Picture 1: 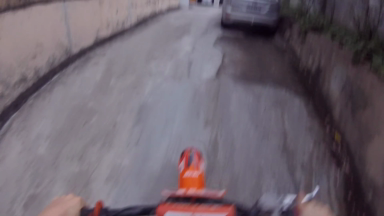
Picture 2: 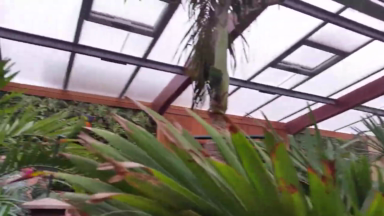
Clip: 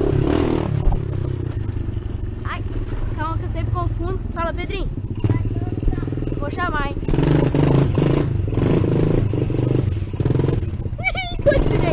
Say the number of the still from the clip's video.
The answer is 1